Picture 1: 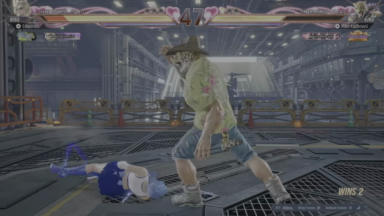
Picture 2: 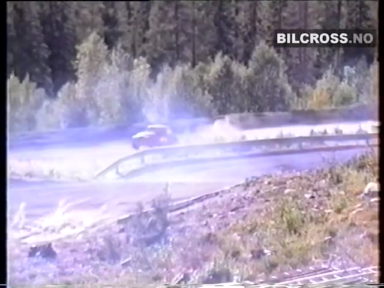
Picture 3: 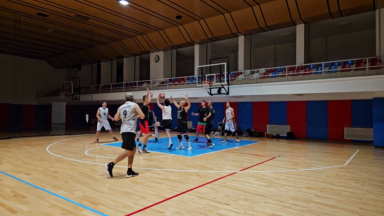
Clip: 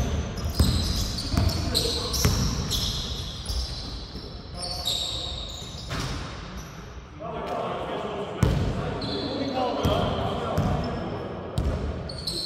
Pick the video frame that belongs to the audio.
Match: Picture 3